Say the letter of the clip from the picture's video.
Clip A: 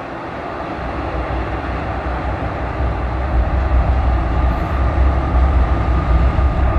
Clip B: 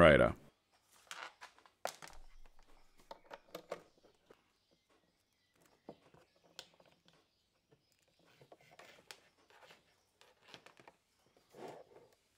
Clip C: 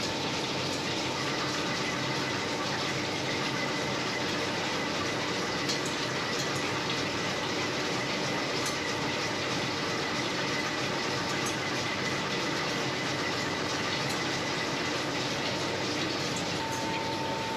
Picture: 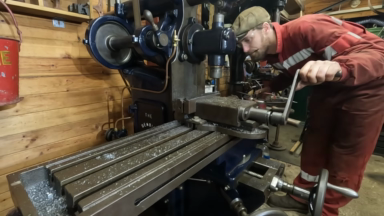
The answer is C